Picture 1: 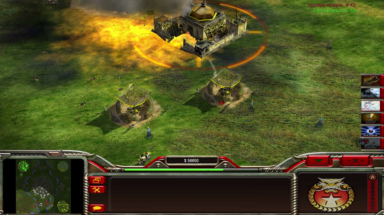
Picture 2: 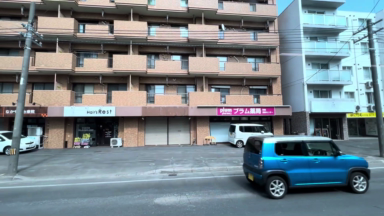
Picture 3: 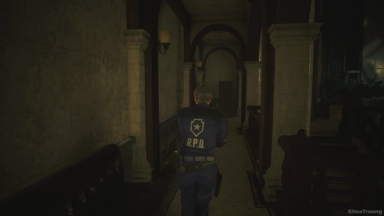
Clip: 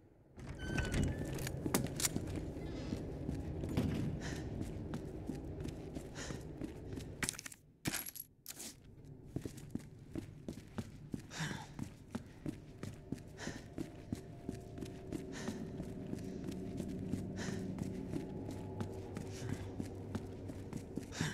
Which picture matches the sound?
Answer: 3